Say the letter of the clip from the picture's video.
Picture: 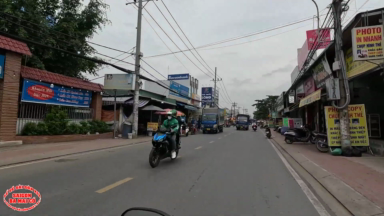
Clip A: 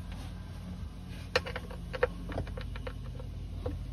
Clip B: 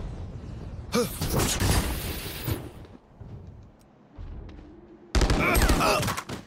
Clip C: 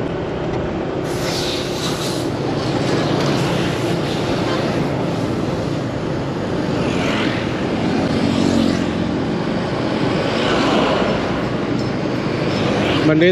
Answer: C